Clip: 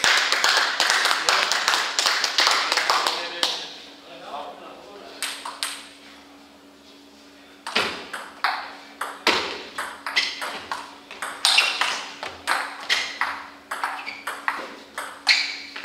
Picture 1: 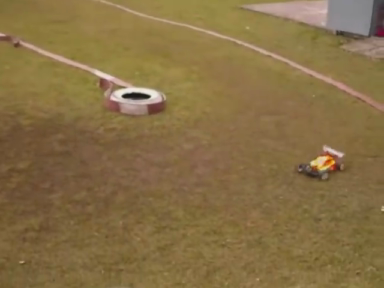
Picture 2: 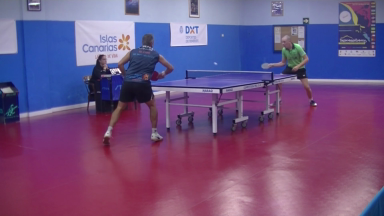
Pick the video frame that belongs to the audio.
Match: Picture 2